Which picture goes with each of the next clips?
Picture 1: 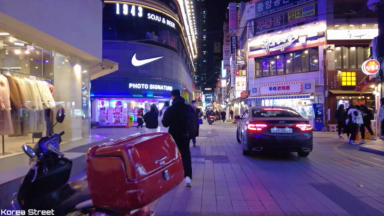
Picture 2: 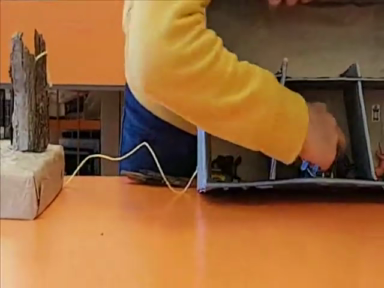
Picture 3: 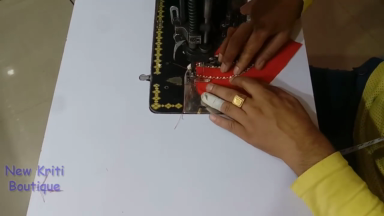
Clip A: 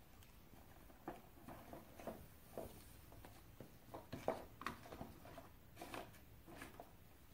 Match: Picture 2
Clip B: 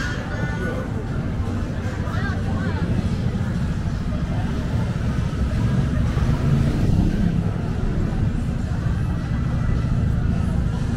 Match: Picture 1